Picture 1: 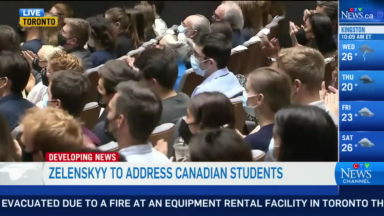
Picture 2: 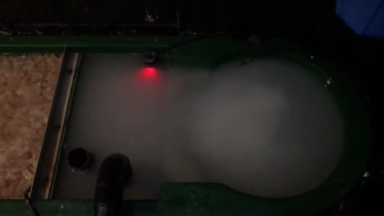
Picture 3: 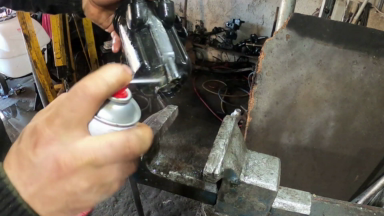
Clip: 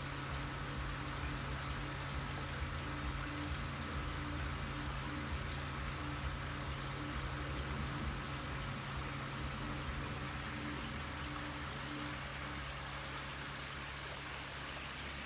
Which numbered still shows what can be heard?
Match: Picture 2